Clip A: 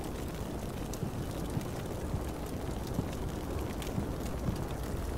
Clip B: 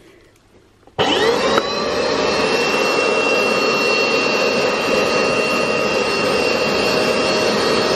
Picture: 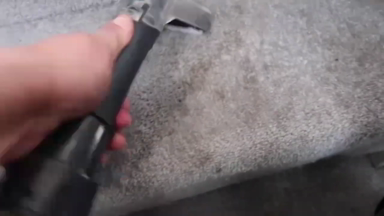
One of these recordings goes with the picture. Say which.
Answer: B